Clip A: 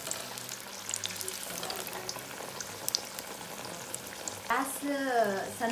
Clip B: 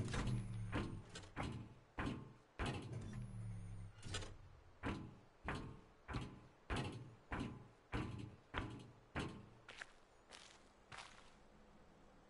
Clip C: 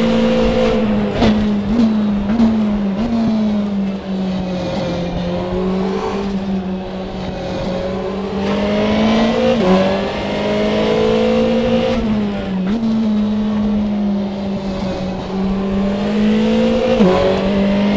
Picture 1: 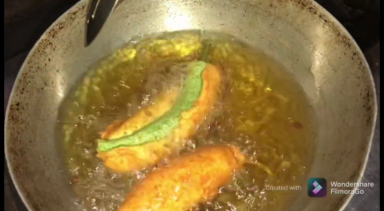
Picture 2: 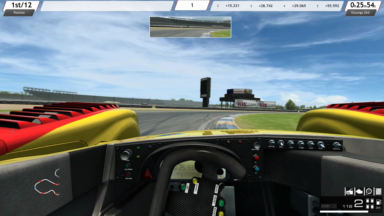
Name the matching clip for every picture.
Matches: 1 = A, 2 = C